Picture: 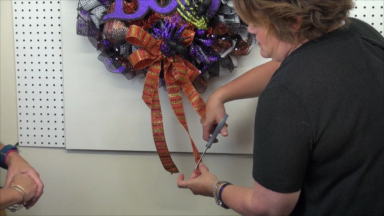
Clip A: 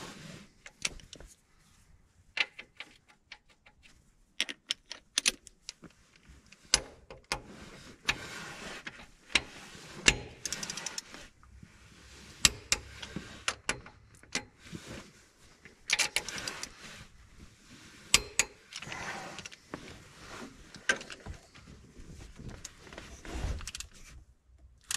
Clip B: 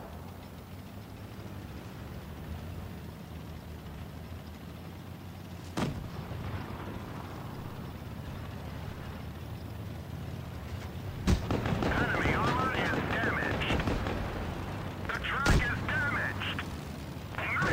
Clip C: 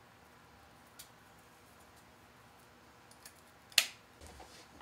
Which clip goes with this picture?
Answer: C